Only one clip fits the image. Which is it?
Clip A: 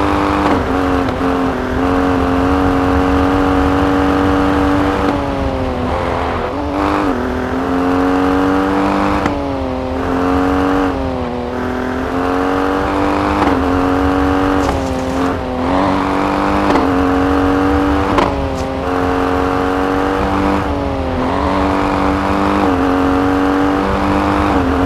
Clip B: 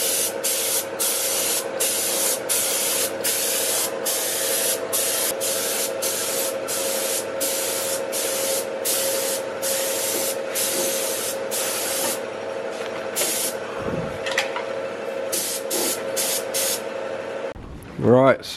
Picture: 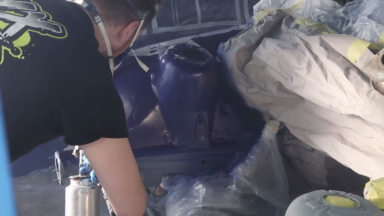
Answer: B